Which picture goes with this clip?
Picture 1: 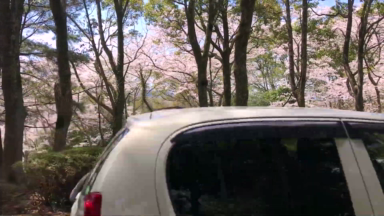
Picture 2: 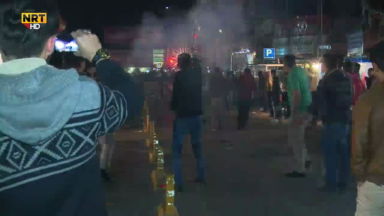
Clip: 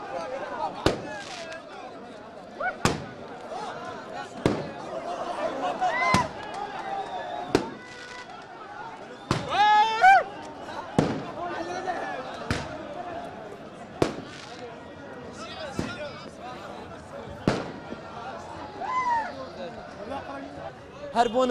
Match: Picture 2